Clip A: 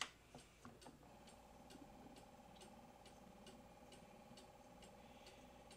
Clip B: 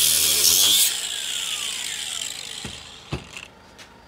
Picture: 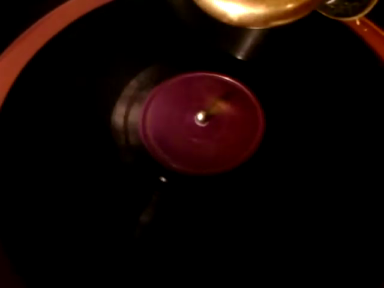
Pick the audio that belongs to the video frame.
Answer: A